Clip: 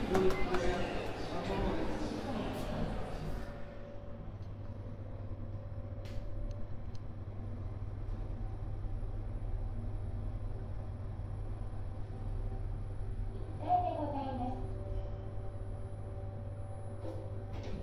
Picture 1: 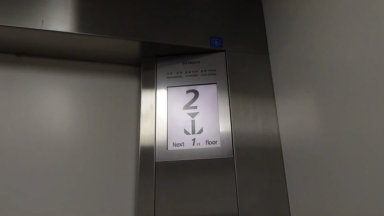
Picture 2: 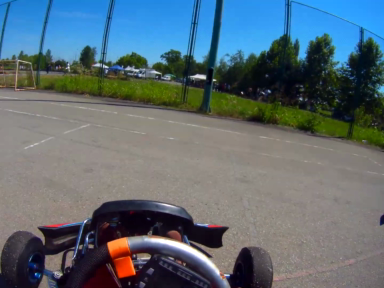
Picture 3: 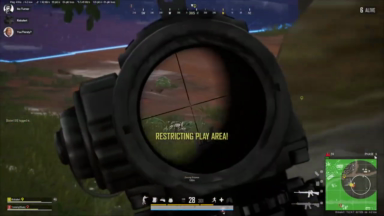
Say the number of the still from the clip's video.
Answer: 1